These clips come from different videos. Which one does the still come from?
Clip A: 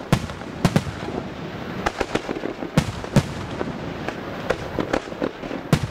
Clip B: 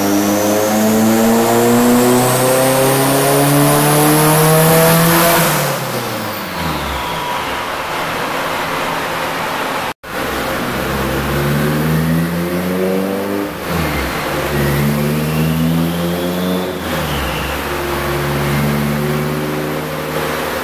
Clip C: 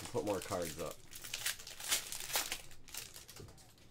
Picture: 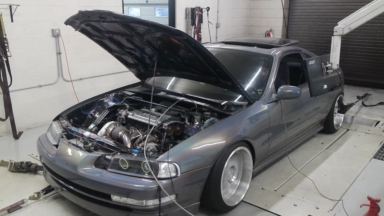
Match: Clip B